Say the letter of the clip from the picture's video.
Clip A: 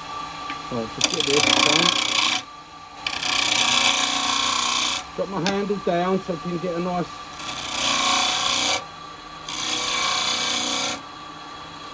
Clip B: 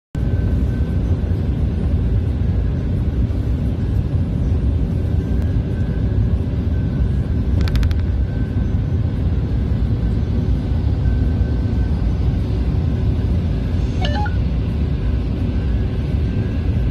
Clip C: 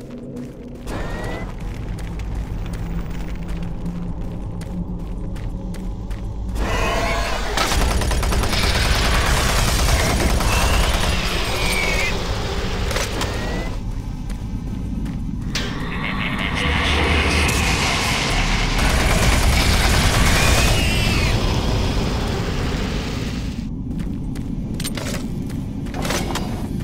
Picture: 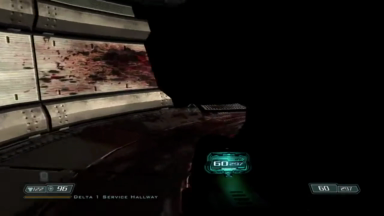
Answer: C